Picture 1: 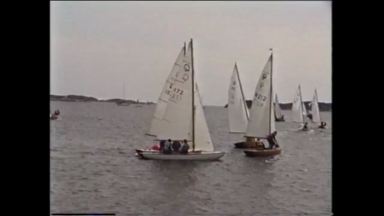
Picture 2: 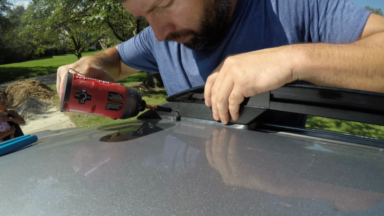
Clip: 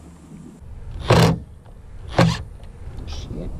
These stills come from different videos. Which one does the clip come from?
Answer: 2